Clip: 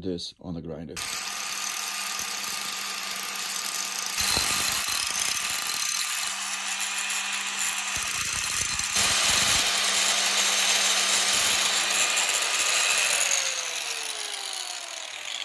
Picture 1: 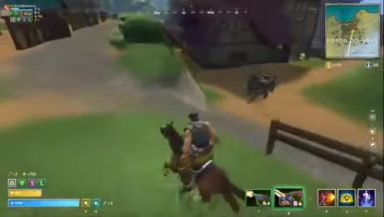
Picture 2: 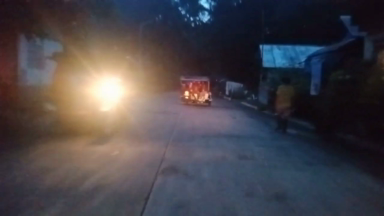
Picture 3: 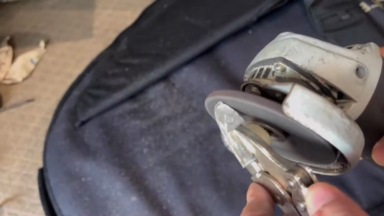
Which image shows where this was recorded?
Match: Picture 3